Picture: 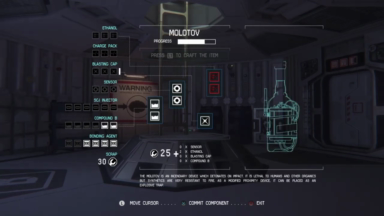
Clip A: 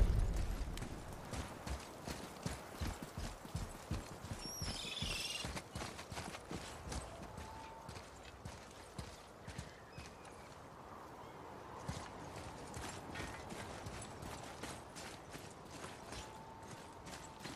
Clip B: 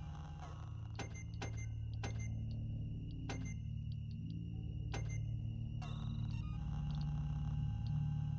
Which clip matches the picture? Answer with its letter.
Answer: B